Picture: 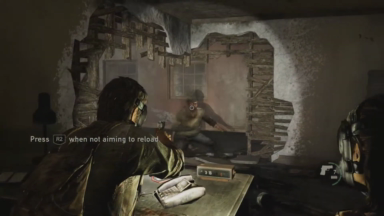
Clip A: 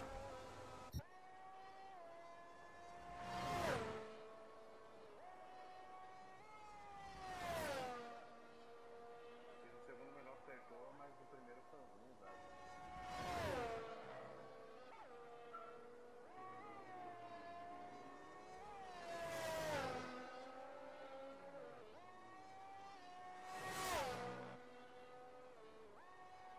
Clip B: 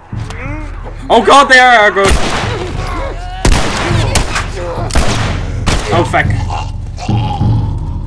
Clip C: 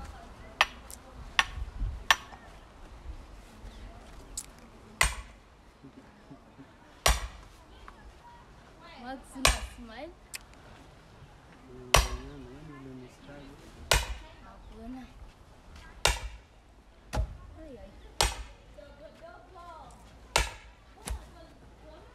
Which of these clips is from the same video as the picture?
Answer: B